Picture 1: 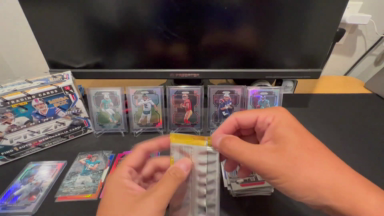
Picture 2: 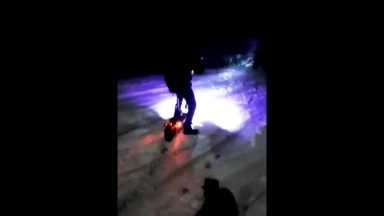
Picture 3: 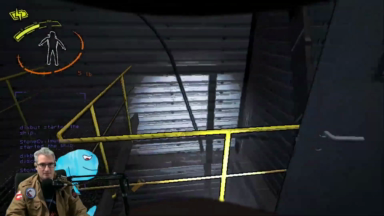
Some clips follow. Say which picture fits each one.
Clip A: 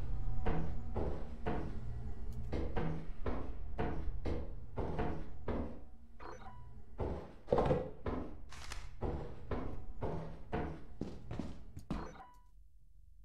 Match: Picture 3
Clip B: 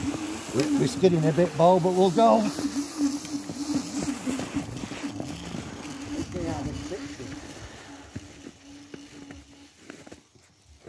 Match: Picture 2